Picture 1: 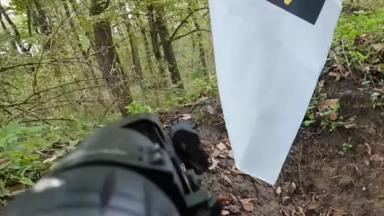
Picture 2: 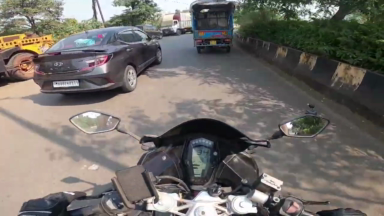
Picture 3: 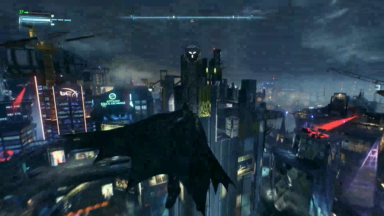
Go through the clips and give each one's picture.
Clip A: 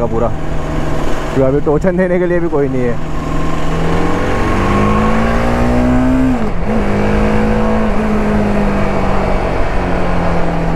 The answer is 2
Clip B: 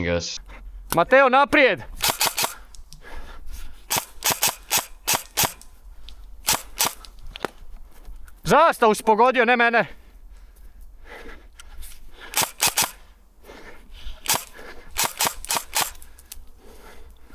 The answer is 1